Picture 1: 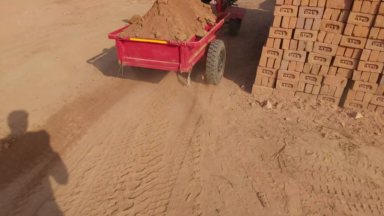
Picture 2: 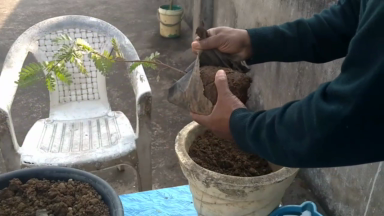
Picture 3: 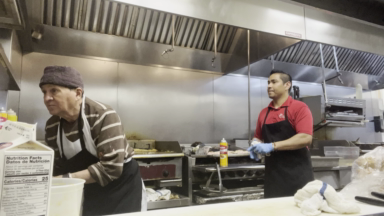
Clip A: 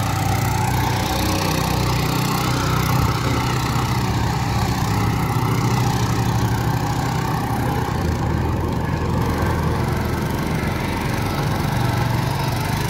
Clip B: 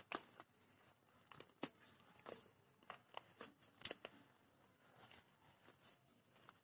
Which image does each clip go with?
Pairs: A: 1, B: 2